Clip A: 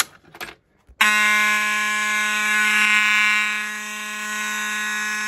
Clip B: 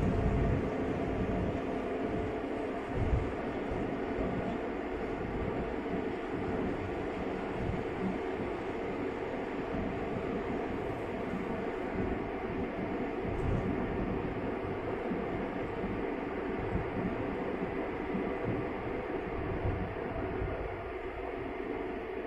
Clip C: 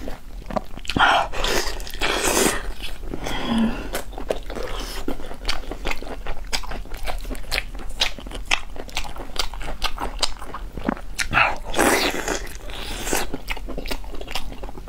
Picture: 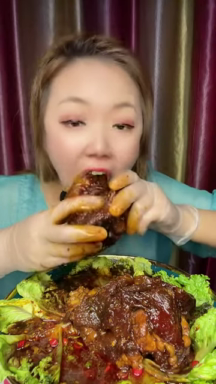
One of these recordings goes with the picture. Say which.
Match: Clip C